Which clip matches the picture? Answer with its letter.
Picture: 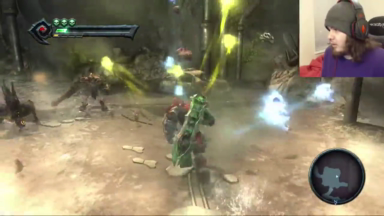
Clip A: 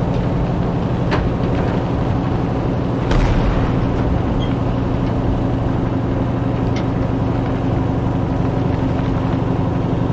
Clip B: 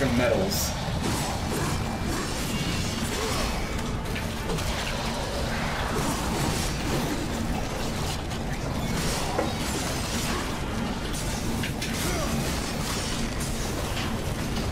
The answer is B